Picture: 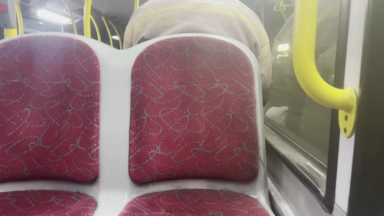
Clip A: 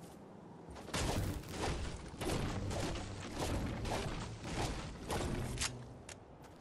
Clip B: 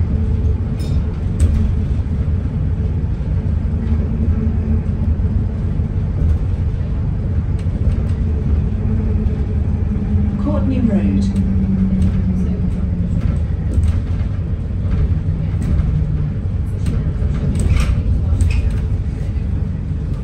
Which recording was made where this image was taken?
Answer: B